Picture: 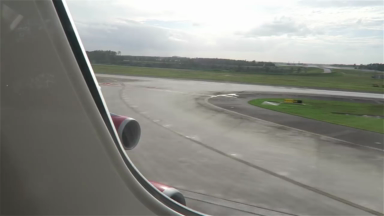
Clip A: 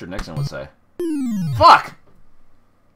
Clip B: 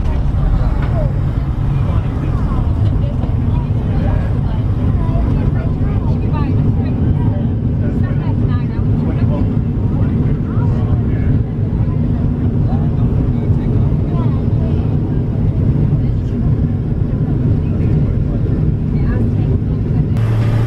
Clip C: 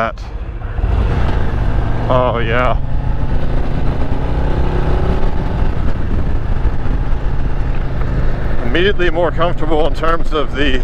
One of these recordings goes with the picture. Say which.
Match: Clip B